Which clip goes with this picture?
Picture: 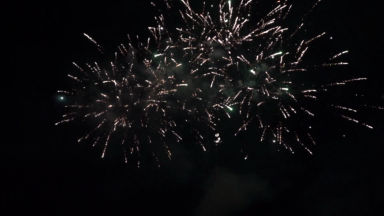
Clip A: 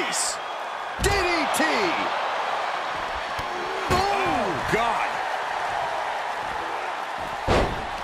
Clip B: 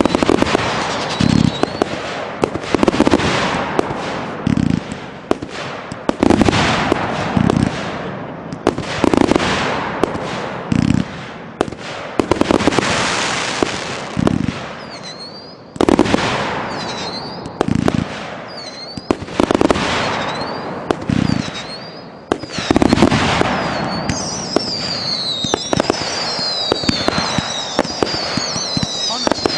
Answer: B